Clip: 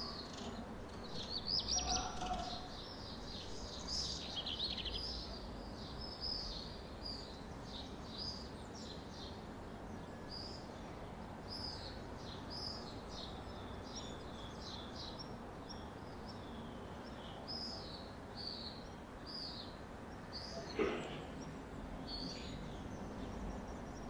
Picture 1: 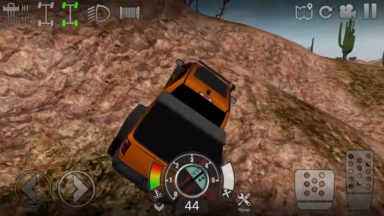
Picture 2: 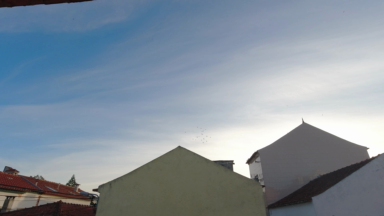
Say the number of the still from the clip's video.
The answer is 2